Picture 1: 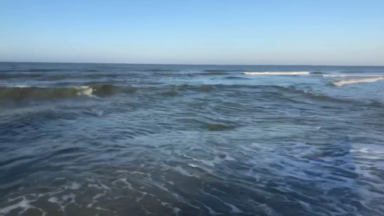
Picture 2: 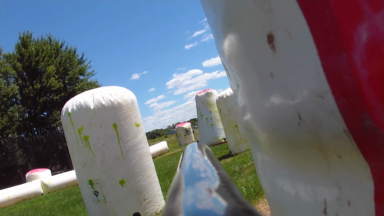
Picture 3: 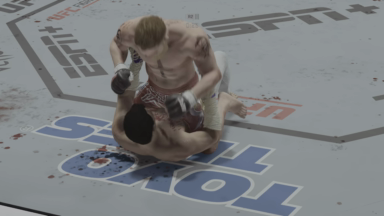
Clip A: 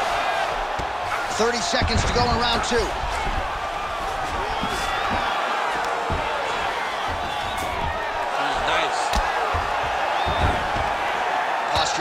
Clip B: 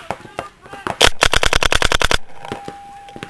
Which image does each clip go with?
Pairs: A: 3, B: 2